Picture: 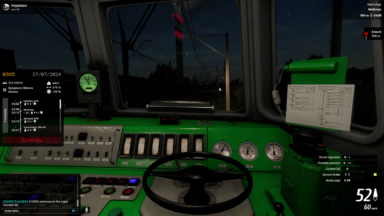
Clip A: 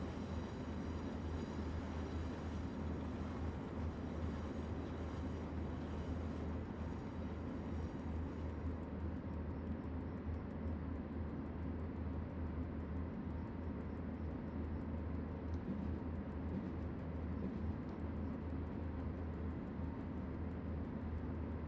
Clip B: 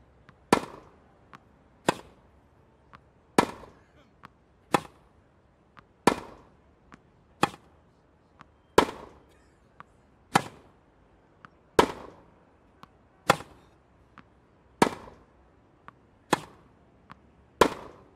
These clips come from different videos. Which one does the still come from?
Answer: A